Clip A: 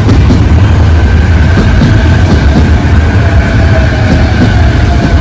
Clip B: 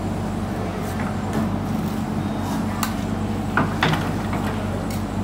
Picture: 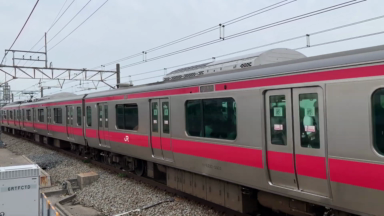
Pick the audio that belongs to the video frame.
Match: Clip A